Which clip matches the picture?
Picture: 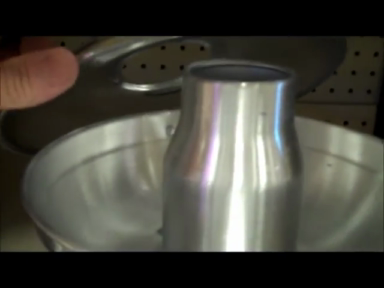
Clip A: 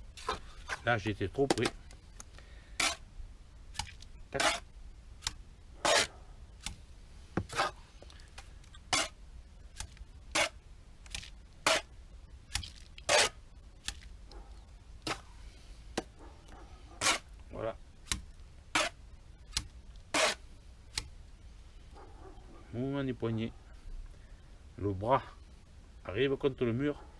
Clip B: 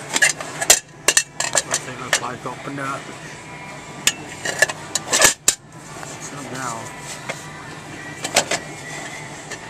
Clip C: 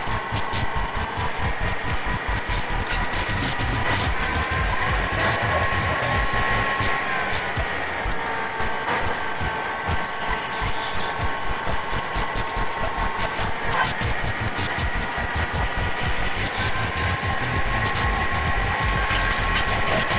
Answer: B